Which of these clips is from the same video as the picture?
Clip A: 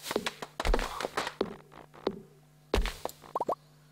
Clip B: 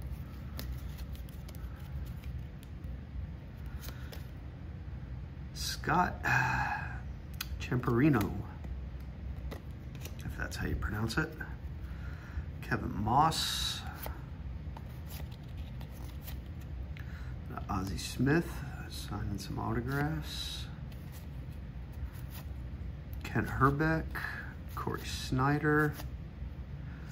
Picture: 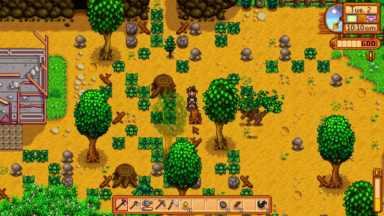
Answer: A